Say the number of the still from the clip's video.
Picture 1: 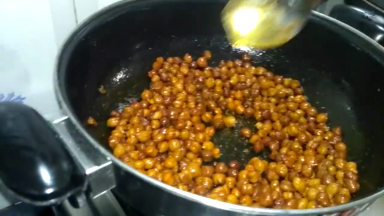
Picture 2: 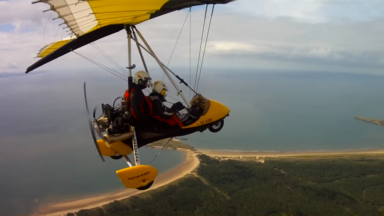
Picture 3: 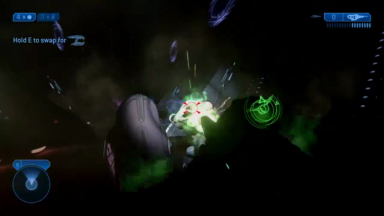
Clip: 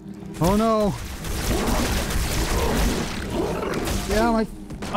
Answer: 3